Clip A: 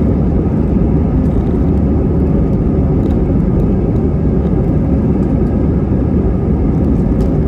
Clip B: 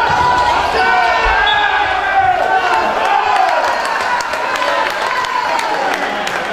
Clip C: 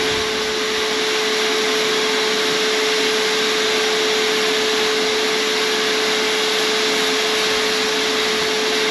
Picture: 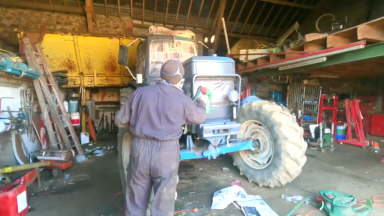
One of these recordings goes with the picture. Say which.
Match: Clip C